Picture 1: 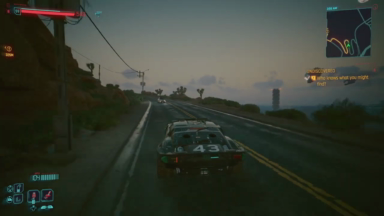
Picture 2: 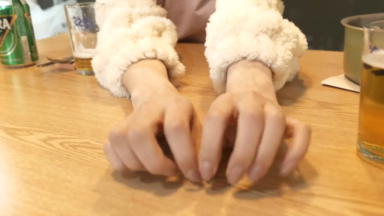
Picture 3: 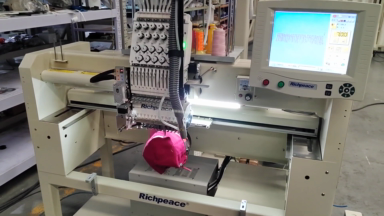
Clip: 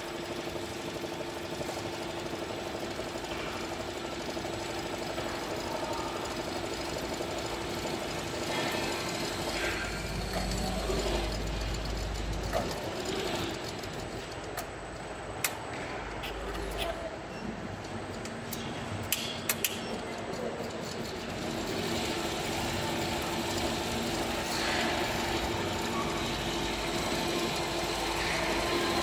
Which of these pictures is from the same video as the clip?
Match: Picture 3